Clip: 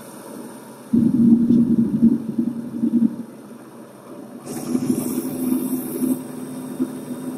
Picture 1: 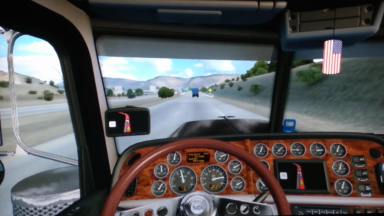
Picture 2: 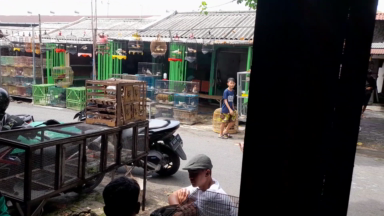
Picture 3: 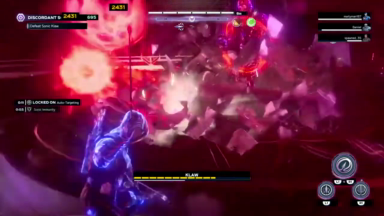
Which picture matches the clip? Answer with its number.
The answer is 1